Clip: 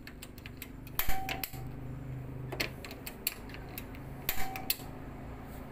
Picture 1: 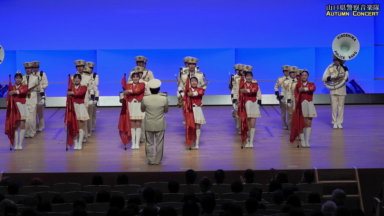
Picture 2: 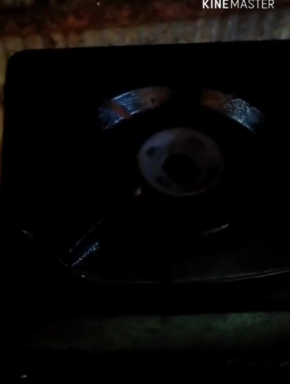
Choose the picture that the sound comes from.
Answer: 2